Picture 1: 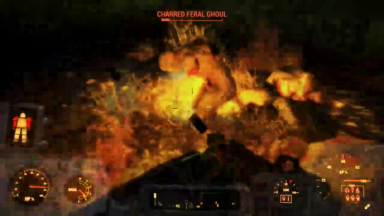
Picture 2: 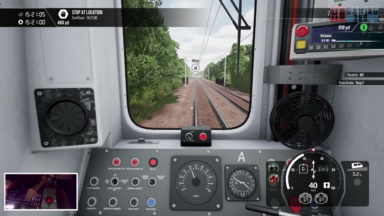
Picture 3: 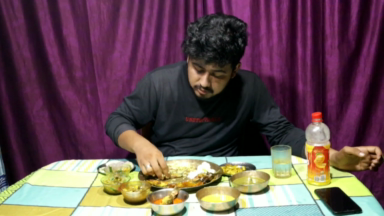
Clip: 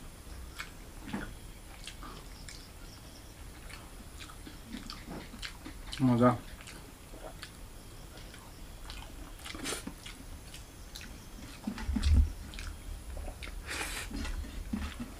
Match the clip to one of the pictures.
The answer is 3